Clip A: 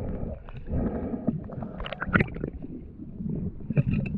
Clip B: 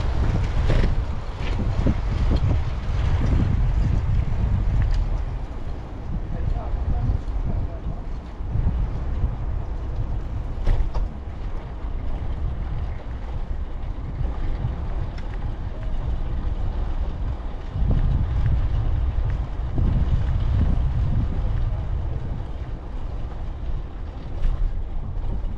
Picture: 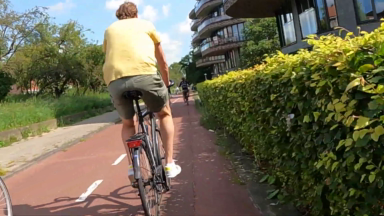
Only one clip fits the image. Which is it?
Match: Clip B